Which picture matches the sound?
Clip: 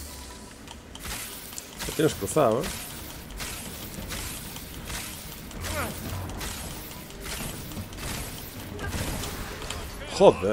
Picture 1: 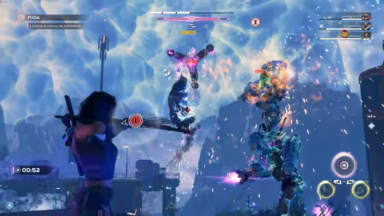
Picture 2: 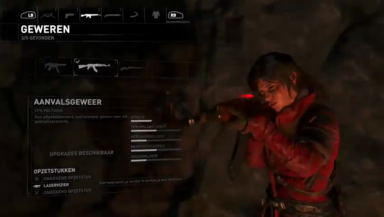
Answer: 1